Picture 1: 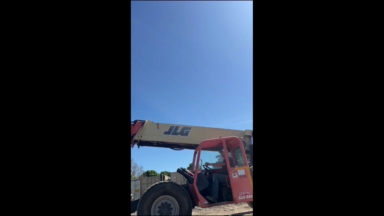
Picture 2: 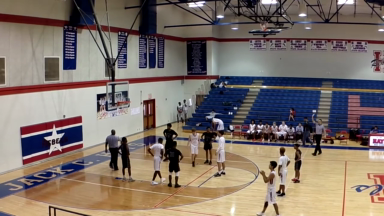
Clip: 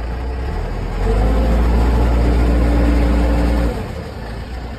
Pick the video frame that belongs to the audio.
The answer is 1